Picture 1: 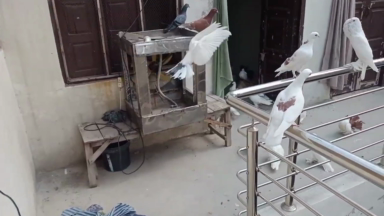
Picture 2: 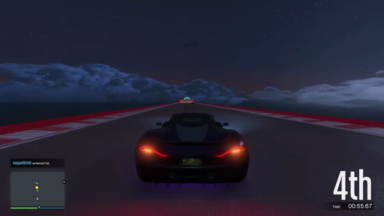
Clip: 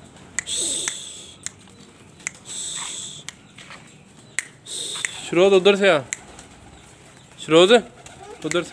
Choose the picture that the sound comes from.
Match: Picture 1